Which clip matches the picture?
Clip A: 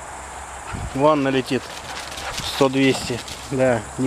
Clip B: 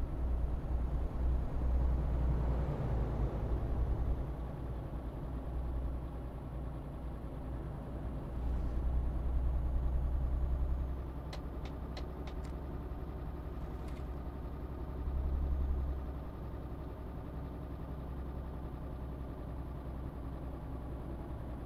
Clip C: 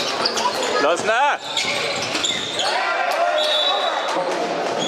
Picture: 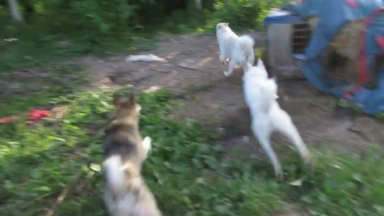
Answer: A